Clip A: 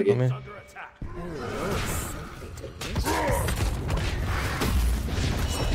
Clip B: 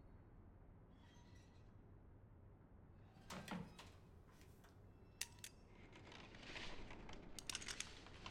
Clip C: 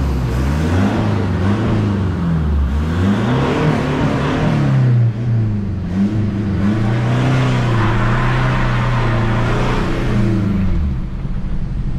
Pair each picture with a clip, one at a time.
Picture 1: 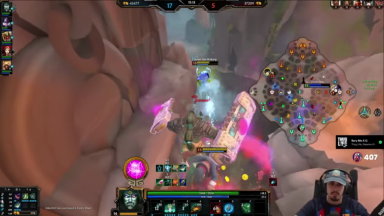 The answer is A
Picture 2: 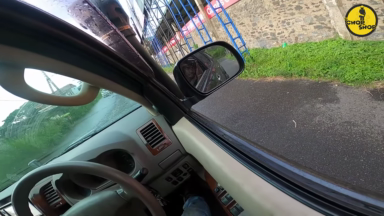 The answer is C